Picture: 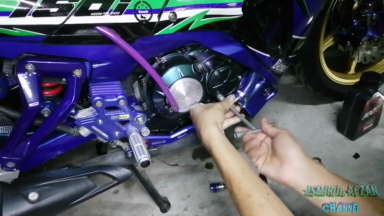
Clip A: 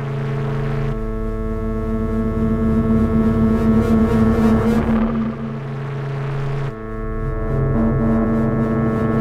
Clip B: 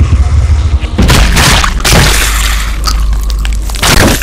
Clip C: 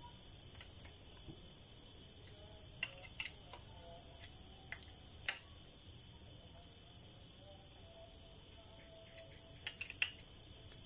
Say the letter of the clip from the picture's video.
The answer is C